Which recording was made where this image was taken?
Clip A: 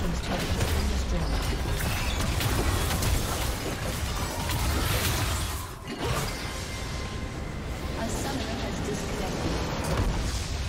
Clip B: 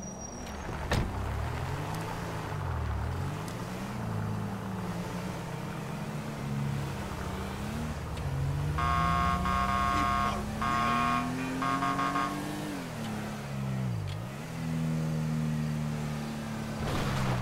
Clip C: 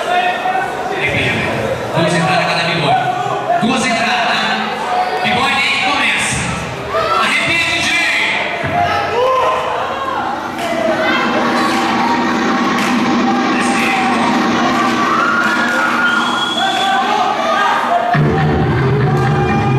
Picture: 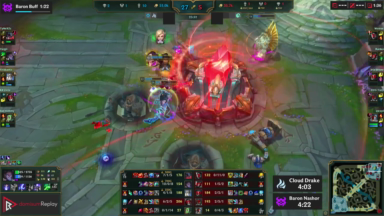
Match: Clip A